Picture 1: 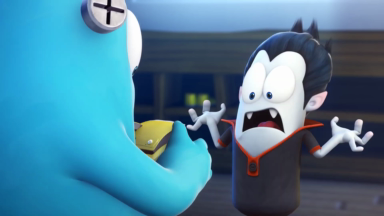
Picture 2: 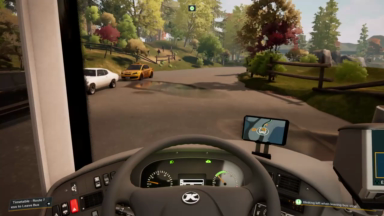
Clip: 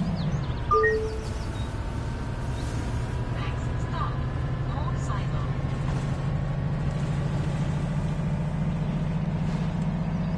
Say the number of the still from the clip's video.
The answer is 2